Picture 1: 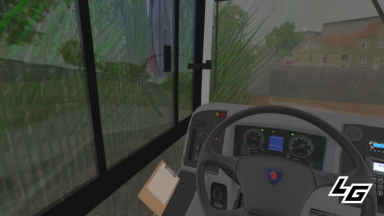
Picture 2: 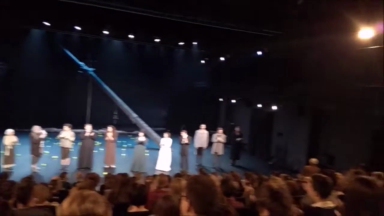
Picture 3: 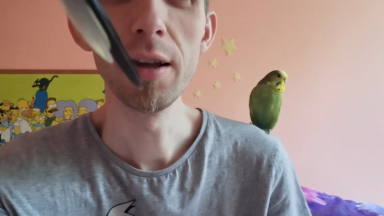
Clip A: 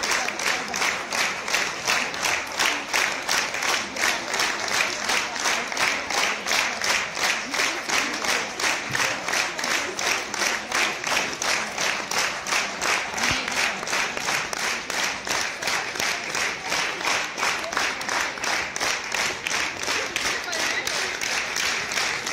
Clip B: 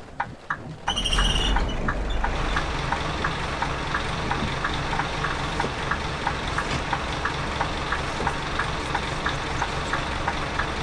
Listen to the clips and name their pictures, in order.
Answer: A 2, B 1